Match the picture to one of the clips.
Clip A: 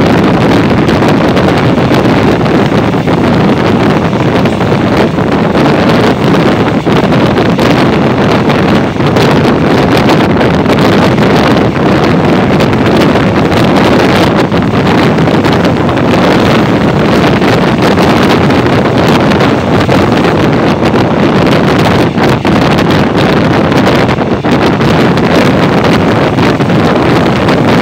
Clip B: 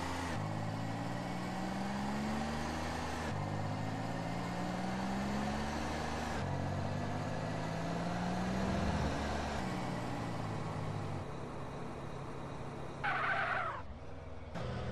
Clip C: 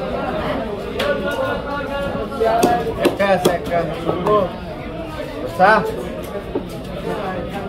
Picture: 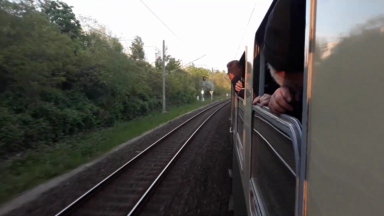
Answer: A